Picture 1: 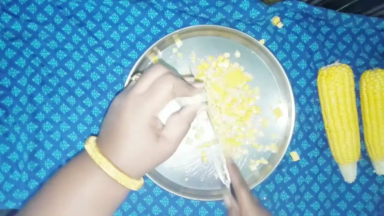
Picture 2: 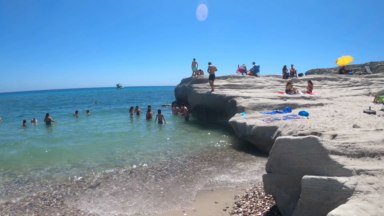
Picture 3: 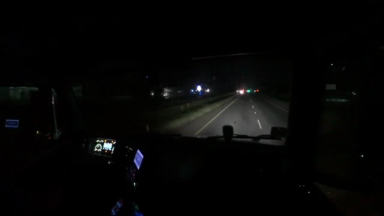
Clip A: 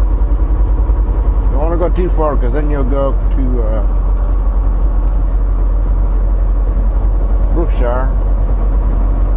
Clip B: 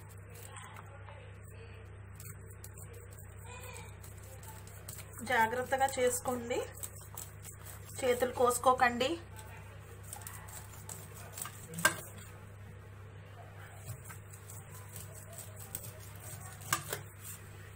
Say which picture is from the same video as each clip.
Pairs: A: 3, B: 1